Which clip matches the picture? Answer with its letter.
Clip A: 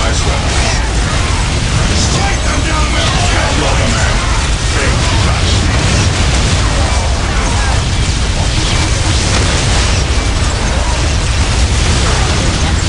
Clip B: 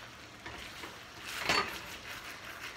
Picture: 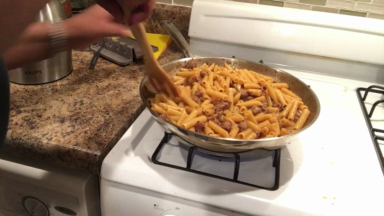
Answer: B